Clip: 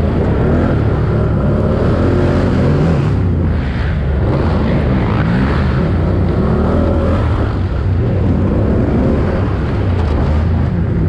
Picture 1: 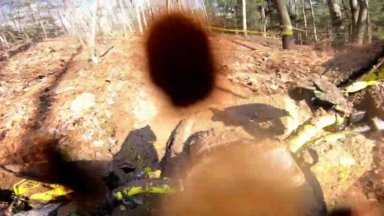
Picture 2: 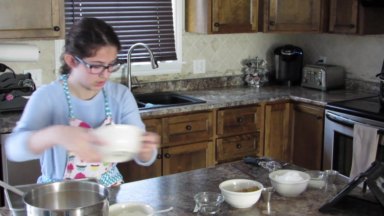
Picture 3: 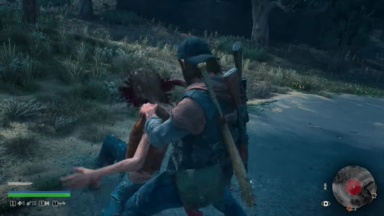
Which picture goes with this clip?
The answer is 1